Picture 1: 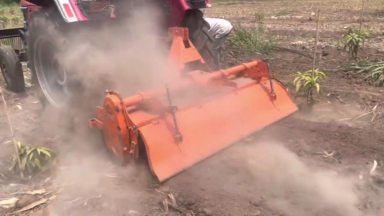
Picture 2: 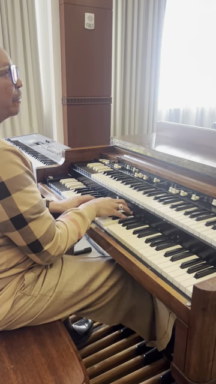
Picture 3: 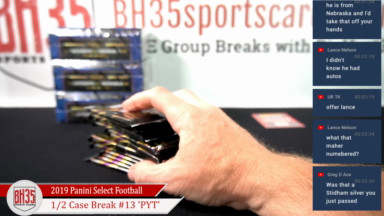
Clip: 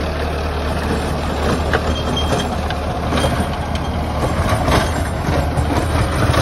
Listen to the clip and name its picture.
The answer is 1